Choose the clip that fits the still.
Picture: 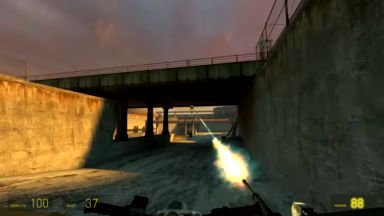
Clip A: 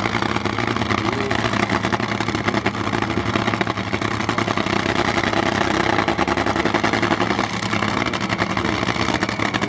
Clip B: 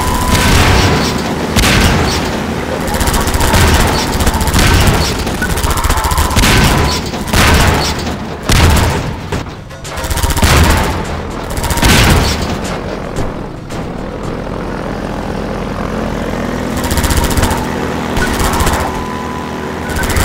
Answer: B